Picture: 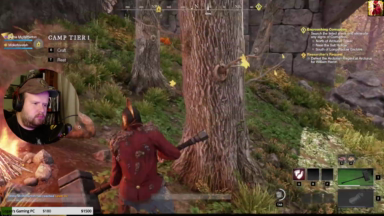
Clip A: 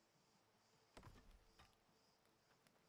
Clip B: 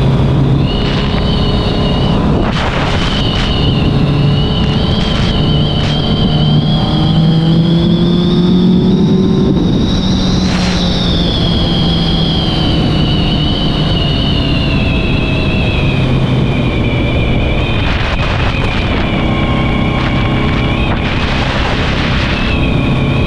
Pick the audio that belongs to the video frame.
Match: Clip A